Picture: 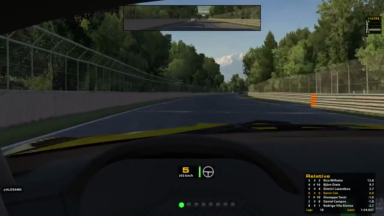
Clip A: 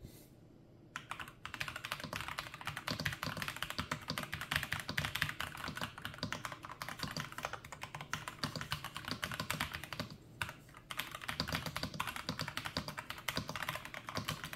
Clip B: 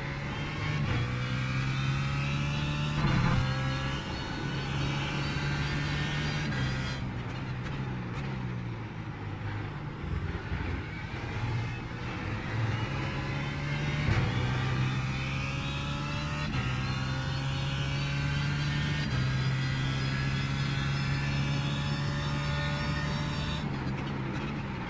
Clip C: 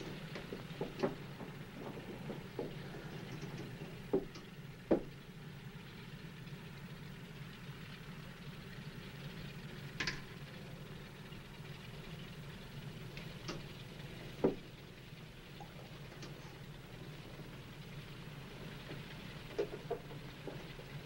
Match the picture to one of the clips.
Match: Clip B